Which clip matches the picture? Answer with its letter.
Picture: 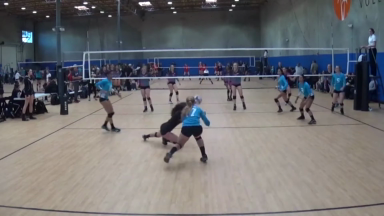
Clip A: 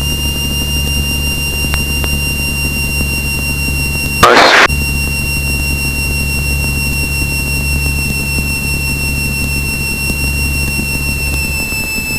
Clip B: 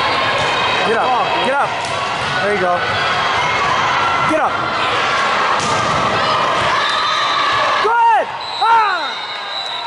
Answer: B